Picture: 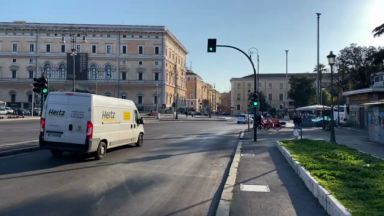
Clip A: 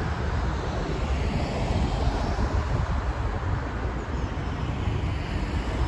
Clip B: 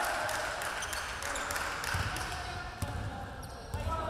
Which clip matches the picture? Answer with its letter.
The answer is A